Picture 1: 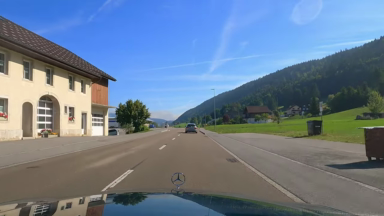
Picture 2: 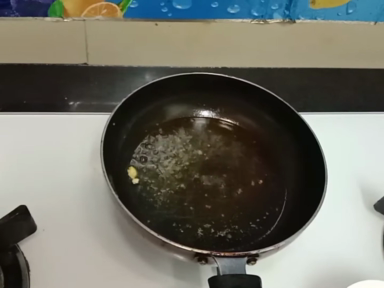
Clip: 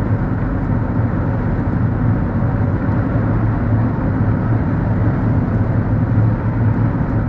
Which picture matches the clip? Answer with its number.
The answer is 1